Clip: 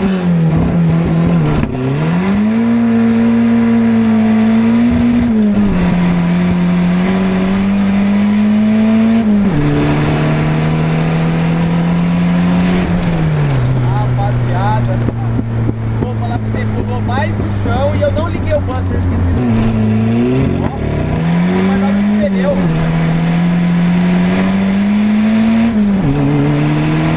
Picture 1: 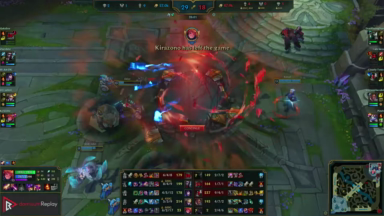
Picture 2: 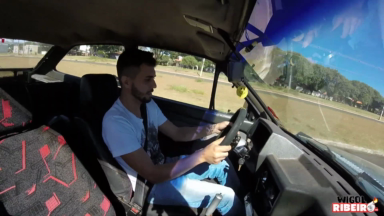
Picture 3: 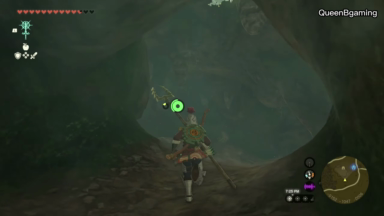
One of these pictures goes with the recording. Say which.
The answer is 2